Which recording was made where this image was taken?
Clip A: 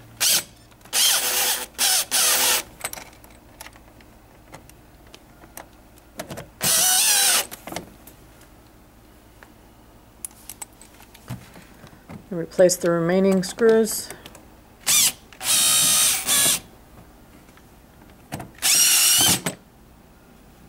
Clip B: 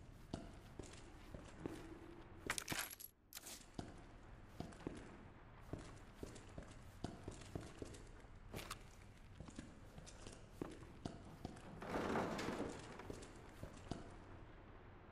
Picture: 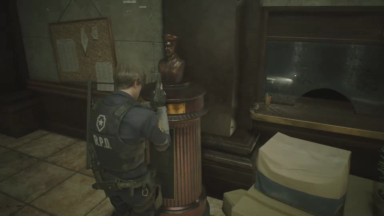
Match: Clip B